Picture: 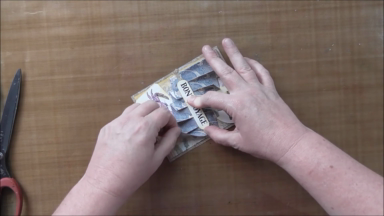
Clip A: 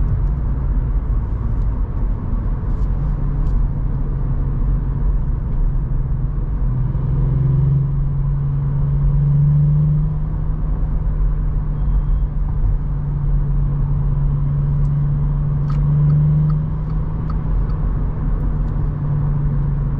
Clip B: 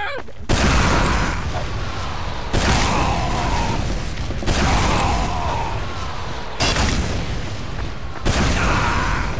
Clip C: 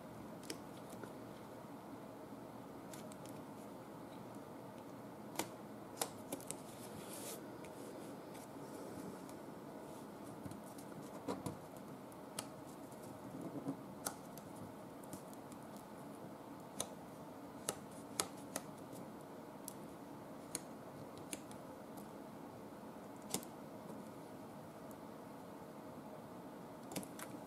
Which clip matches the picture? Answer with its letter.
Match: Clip C